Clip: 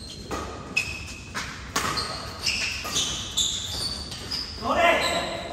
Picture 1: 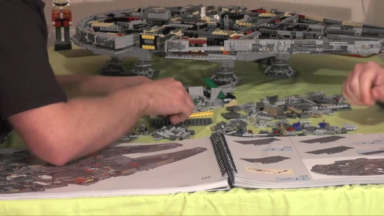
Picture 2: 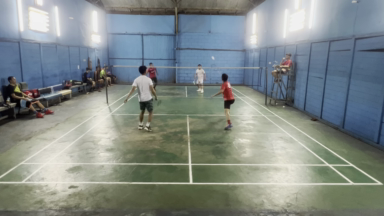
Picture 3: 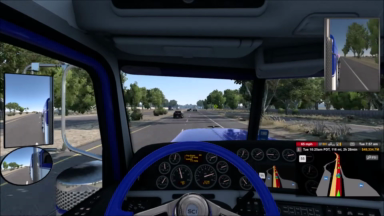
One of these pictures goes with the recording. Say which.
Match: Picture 2